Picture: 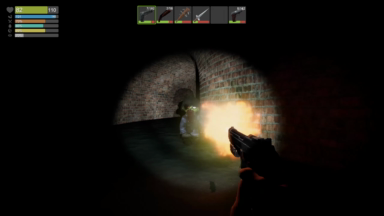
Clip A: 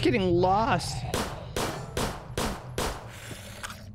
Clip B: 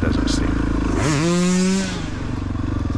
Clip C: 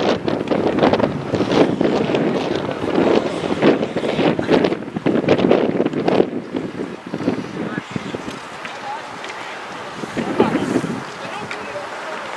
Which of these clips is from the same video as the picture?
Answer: A